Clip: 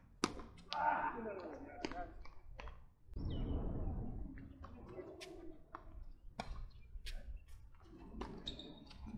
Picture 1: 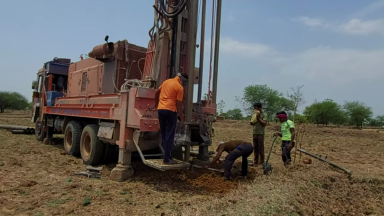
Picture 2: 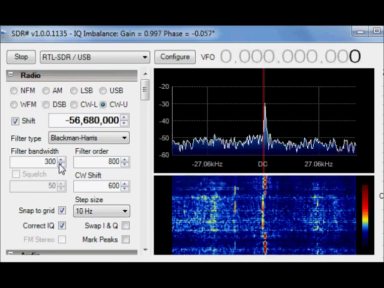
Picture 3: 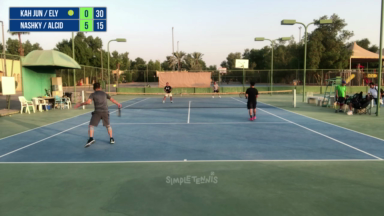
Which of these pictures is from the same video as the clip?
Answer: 3